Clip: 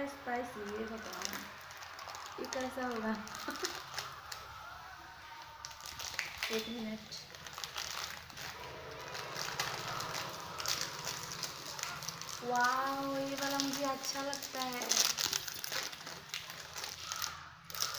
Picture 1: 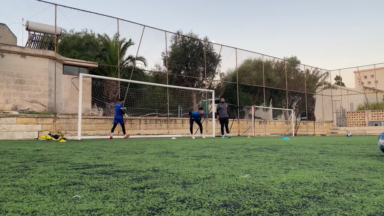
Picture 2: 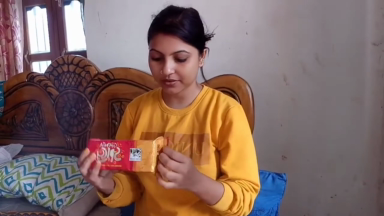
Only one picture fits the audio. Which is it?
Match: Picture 2